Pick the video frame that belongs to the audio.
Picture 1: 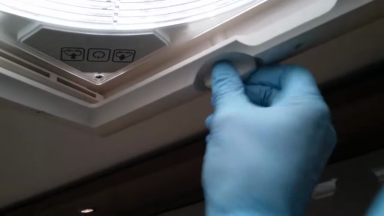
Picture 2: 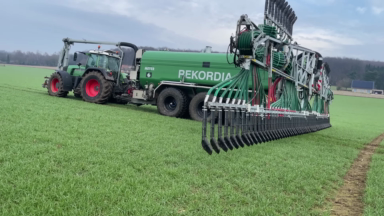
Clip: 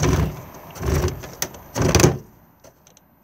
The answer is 1